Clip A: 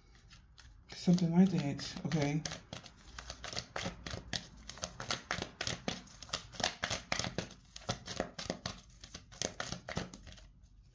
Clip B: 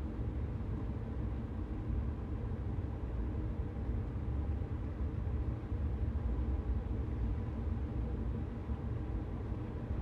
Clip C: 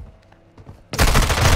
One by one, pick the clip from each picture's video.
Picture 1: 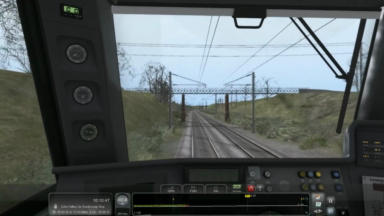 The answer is B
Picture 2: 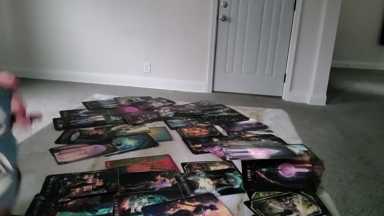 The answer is A